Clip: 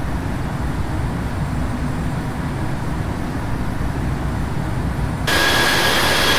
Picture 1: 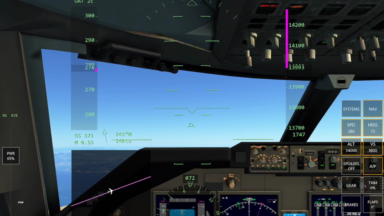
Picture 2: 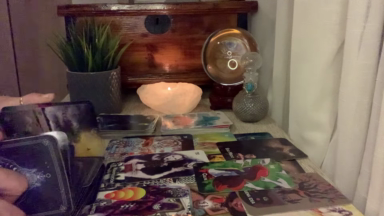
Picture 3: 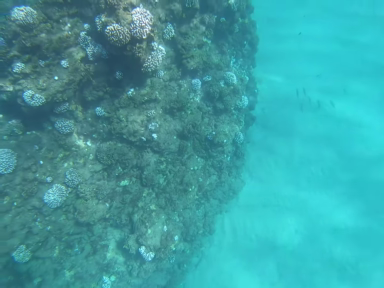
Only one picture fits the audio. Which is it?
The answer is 1